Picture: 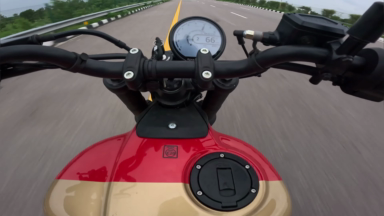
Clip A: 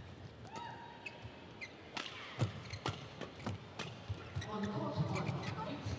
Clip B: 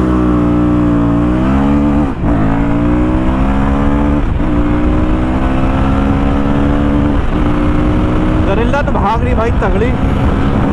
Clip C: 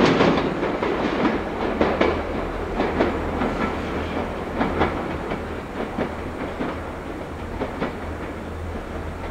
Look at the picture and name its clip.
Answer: B